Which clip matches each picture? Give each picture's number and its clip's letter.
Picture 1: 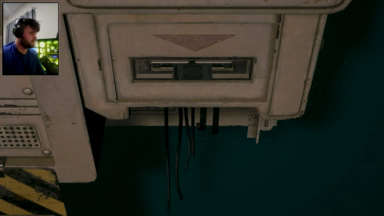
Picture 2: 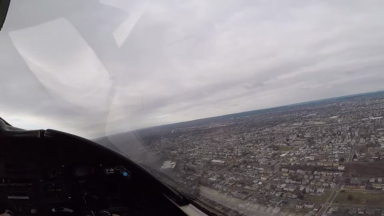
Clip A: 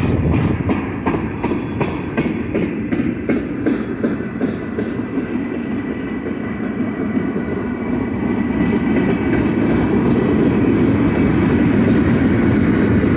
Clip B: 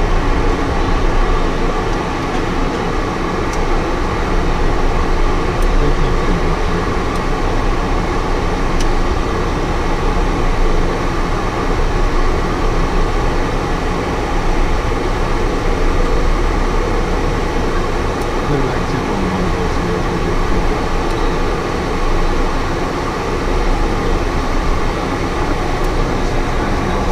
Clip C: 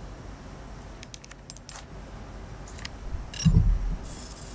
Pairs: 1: C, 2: B